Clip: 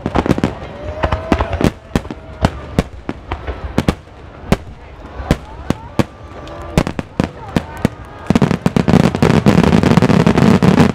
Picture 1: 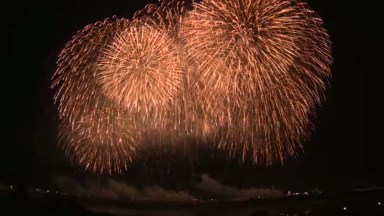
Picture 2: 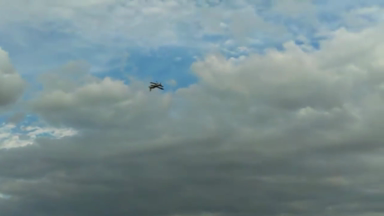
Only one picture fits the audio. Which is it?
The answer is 1